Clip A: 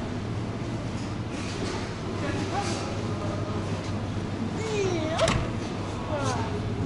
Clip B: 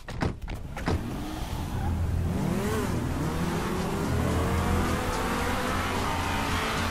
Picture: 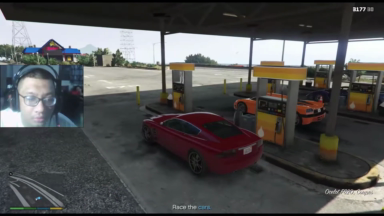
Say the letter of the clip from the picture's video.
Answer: B